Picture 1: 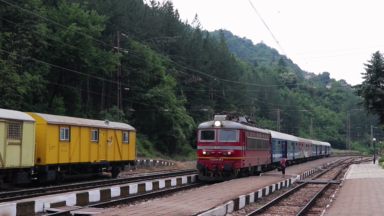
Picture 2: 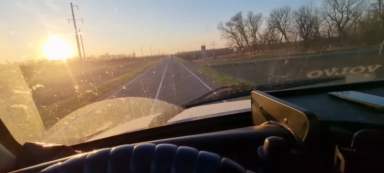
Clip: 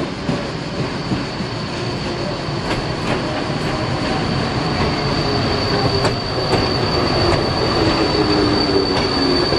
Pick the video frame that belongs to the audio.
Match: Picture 1